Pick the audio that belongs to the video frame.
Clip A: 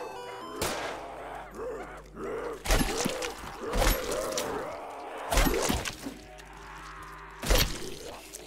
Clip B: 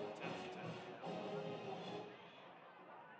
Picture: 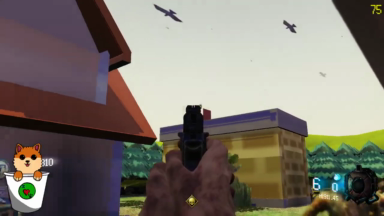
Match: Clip A